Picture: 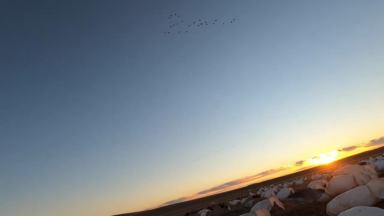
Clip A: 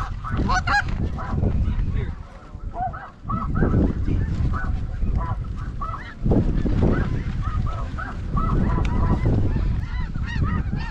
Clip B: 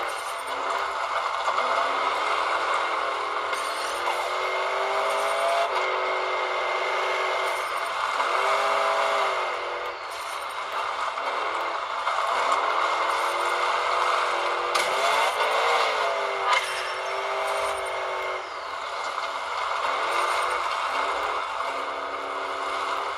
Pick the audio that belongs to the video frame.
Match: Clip A